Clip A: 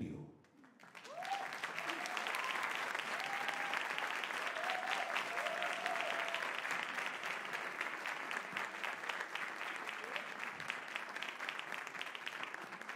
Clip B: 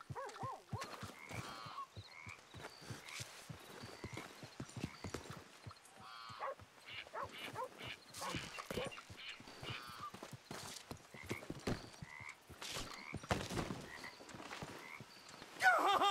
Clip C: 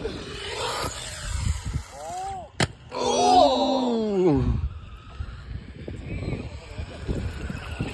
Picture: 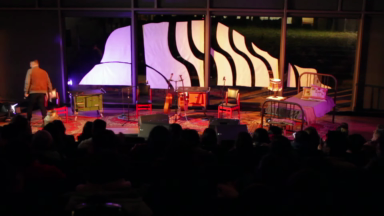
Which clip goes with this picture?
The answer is A